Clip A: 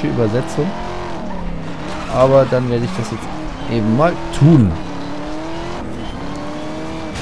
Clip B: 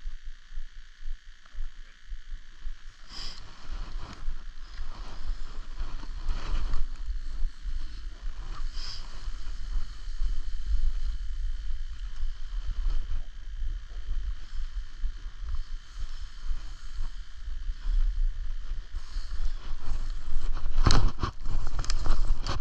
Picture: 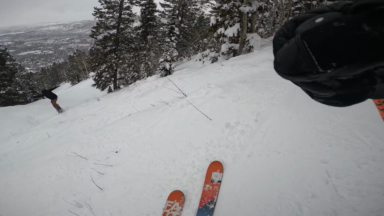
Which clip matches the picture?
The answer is B